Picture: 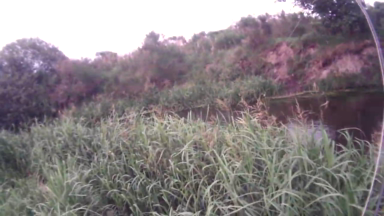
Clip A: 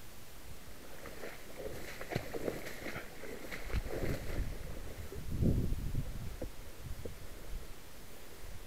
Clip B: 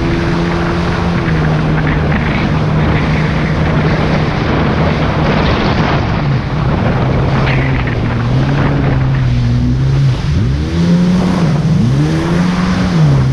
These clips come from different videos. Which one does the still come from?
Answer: A